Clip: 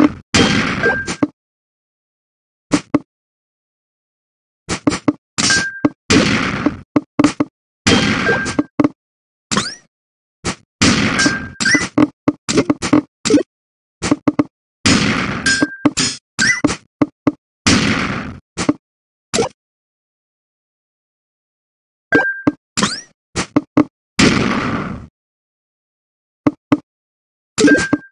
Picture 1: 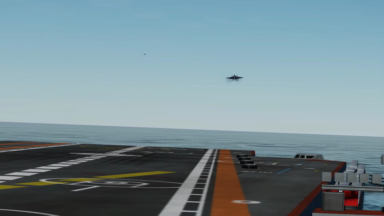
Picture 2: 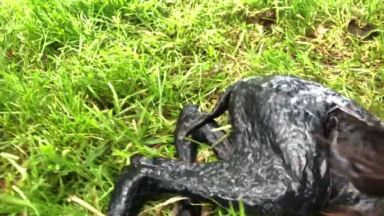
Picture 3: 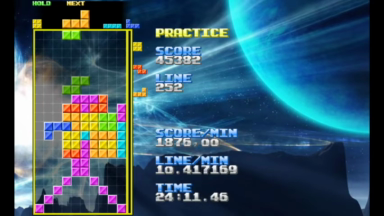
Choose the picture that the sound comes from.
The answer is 3